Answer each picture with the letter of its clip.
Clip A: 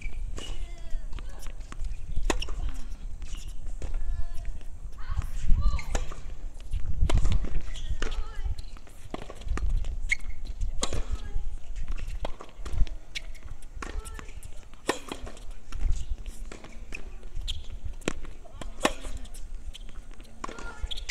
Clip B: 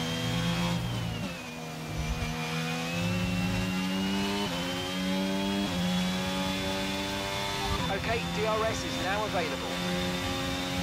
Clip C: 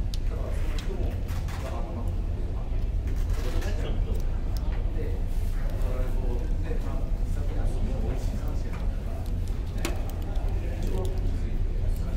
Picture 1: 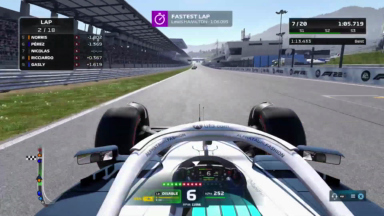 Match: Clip B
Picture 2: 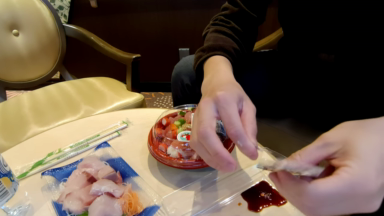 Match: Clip C